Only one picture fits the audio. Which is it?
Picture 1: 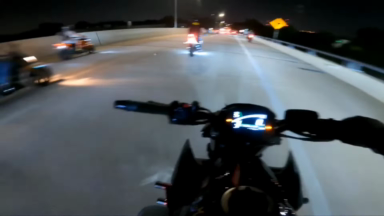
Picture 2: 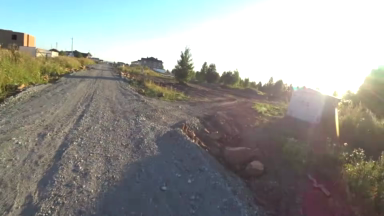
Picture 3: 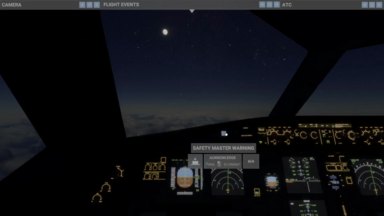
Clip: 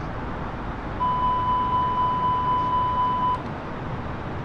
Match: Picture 3